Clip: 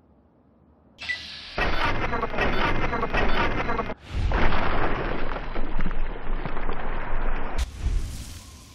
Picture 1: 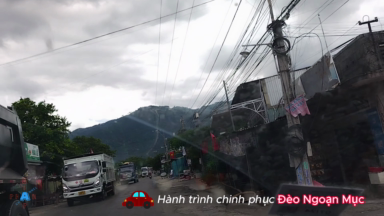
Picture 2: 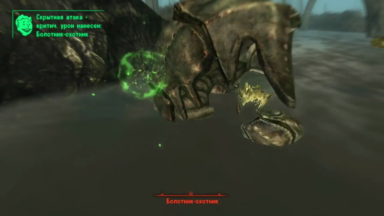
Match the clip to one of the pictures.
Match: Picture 2